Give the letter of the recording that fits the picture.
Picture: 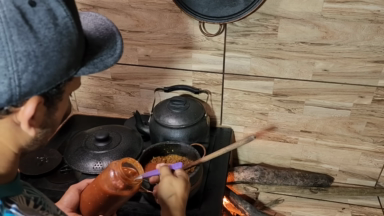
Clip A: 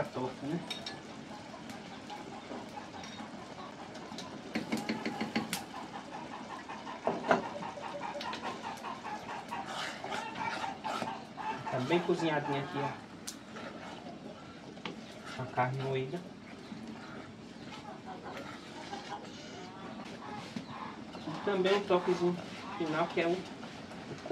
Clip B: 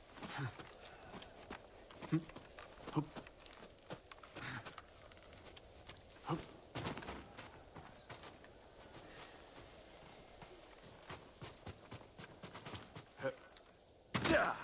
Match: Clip A